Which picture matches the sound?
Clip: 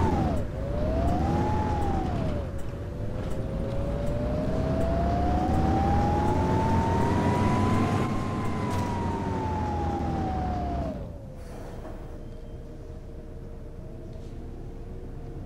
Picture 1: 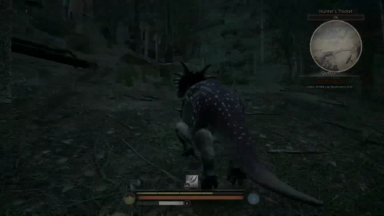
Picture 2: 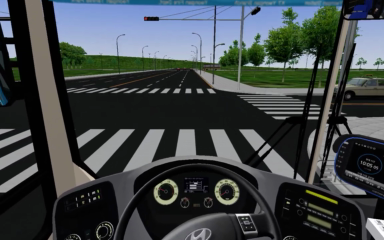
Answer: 2